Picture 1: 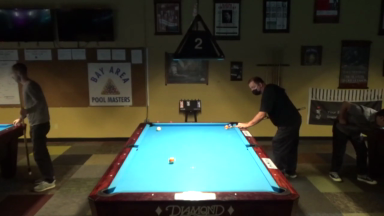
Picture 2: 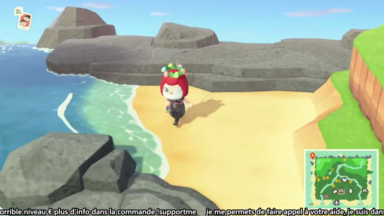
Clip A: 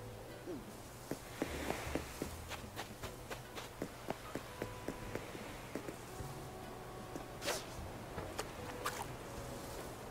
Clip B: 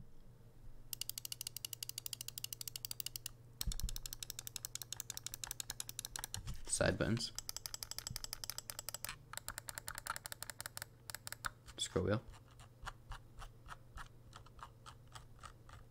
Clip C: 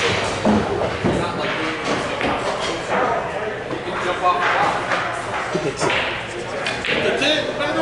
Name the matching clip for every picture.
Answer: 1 C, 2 A